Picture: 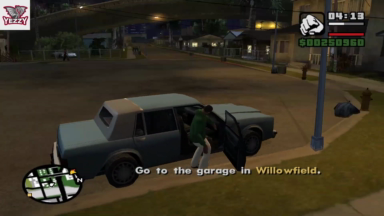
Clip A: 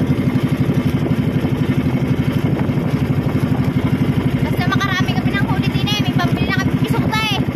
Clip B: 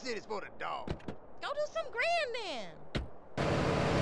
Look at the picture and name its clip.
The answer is B